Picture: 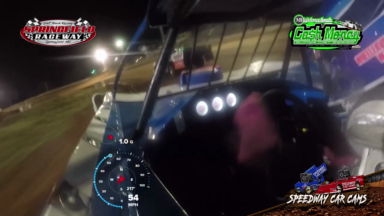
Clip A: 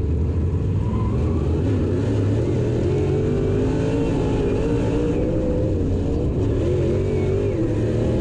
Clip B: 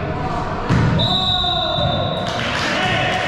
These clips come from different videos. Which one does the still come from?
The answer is A